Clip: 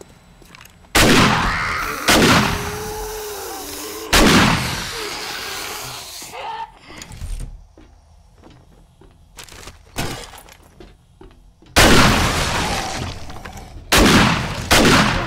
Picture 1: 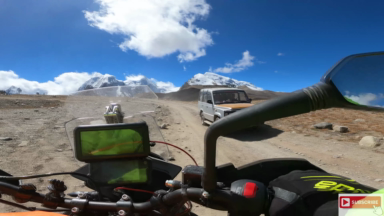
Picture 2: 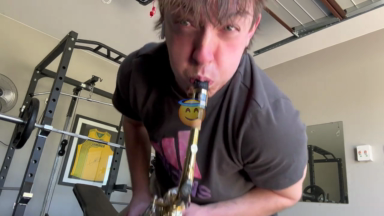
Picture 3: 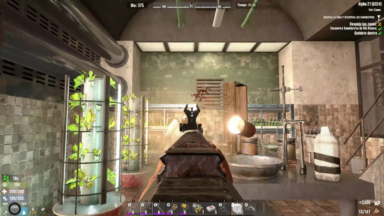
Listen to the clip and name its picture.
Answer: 3